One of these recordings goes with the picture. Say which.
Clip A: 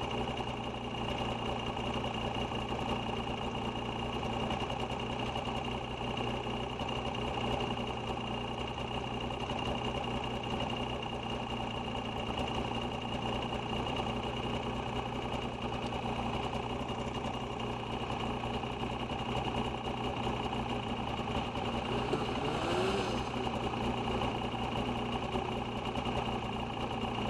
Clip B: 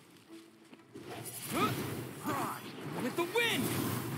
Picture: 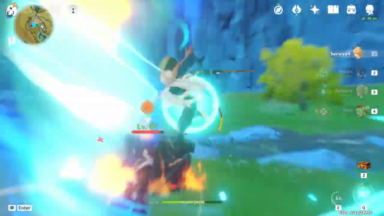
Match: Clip B